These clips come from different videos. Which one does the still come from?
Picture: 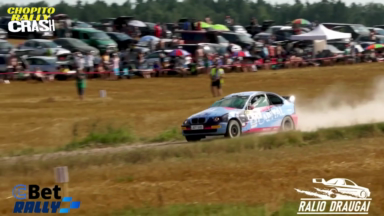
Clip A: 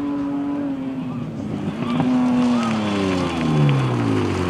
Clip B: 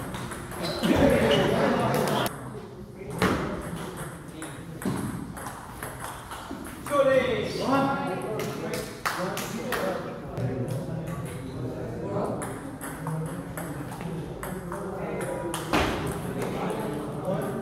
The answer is A